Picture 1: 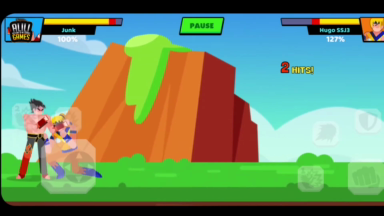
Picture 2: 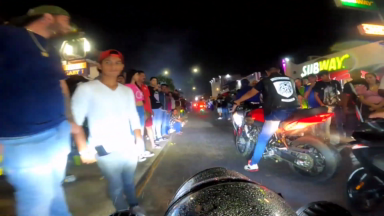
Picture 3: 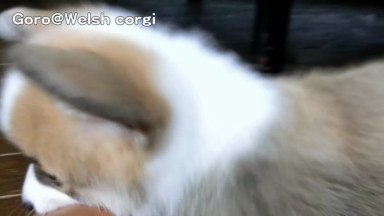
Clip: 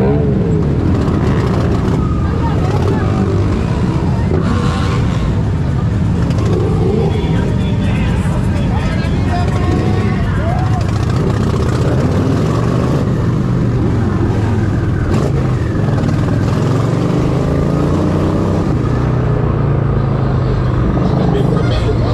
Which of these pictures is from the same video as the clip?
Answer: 2